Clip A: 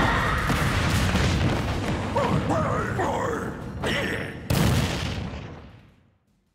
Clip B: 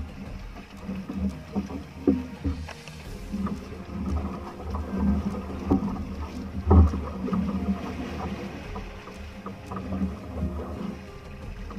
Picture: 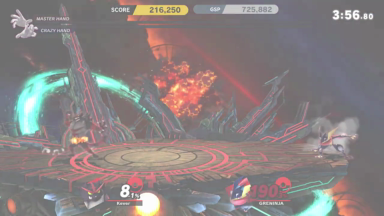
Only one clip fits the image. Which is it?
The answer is A